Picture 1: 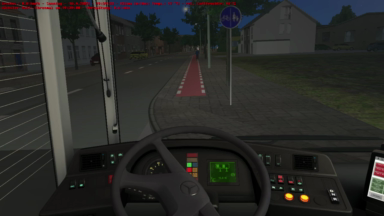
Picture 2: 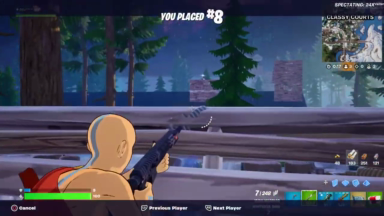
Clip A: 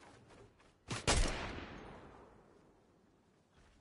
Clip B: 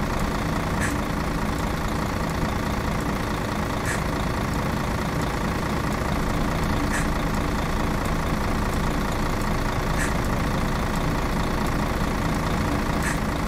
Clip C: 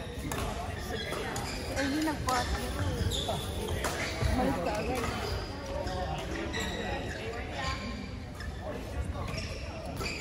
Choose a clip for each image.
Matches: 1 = B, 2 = A